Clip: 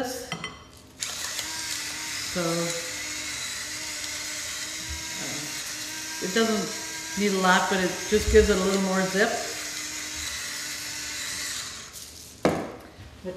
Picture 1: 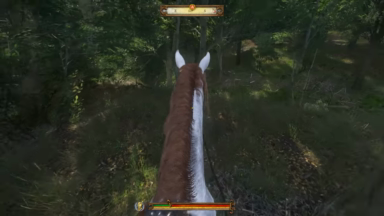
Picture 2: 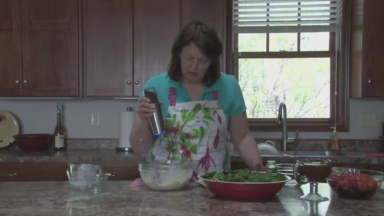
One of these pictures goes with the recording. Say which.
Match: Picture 2